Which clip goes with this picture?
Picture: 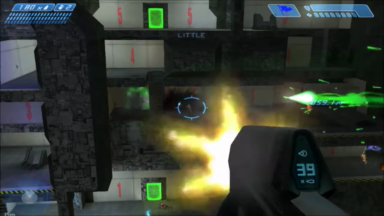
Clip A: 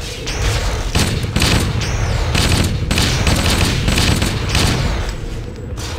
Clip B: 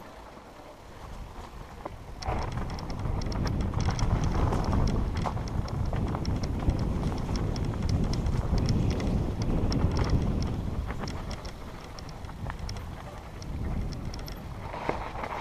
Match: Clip A